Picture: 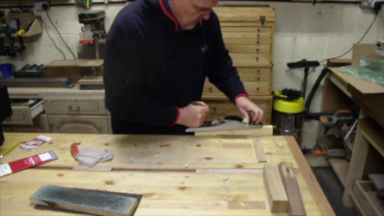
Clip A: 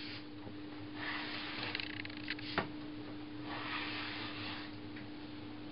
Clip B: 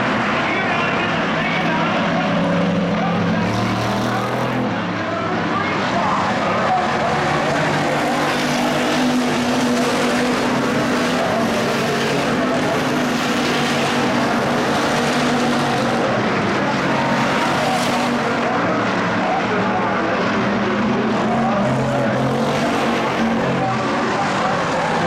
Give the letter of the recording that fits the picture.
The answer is A